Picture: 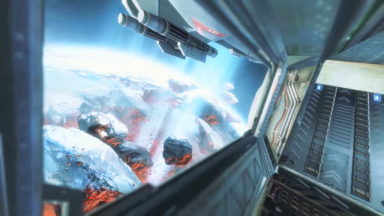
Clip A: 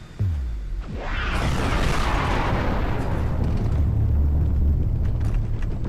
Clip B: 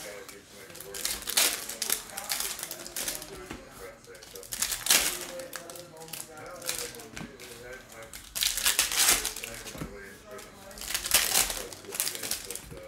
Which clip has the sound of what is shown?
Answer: A